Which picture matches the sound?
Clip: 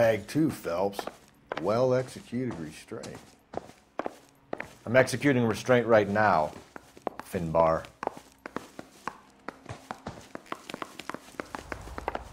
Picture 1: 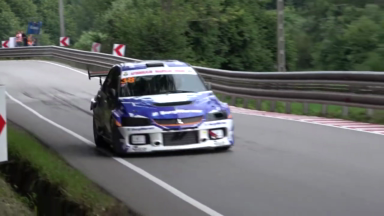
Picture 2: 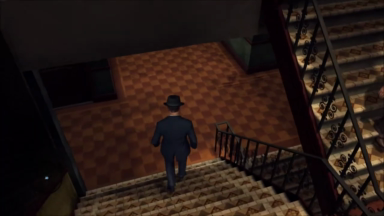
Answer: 2